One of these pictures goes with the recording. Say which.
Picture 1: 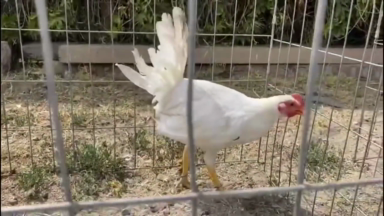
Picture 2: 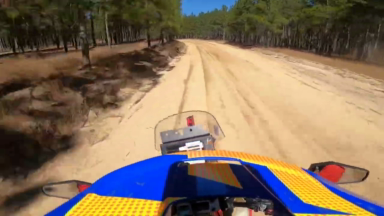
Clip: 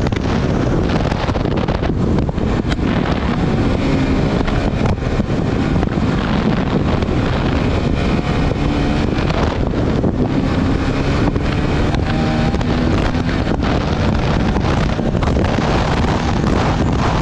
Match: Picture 2